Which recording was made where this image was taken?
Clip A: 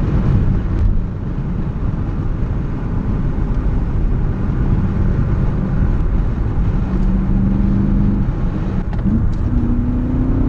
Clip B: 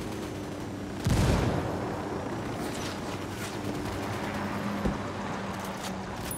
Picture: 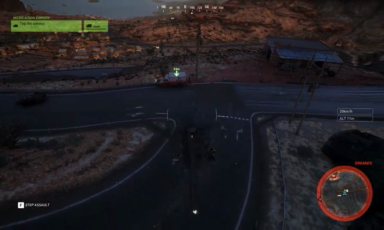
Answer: B